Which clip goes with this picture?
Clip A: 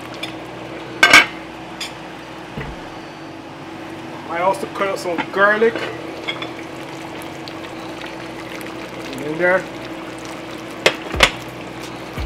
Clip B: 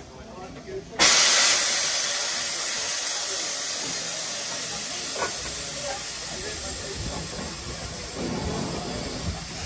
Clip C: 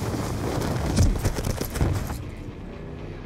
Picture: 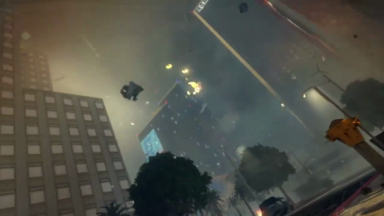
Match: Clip C